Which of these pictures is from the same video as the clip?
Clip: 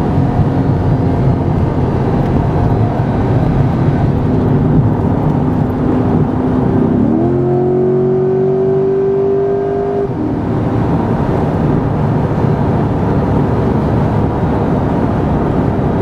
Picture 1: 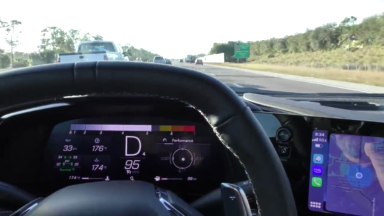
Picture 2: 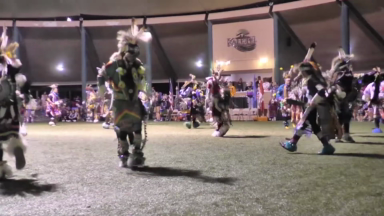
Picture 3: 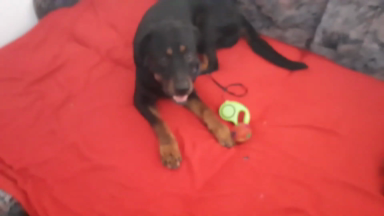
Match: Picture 1